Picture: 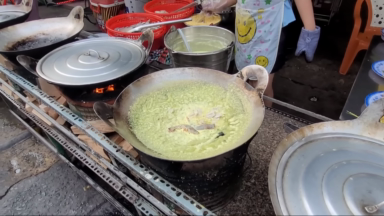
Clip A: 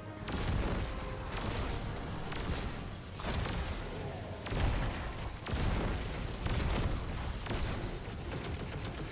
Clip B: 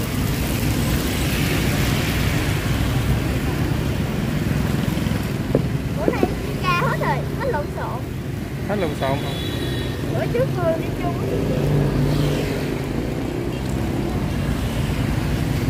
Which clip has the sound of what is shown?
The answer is B